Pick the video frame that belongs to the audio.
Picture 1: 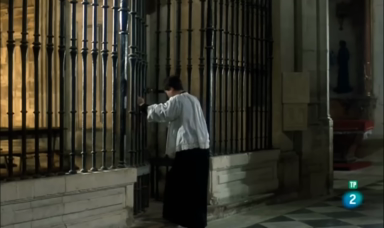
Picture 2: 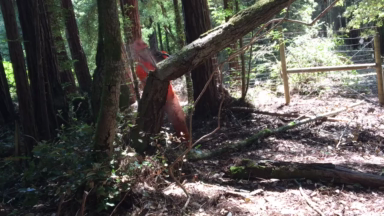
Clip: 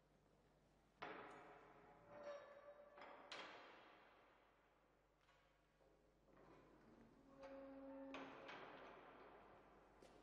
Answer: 1